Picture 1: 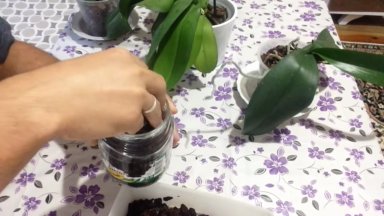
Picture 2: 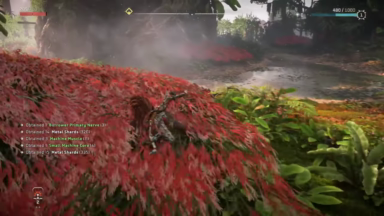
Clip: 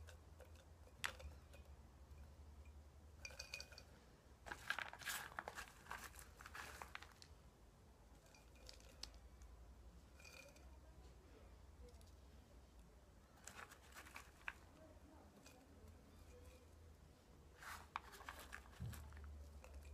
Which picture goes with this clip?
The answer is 1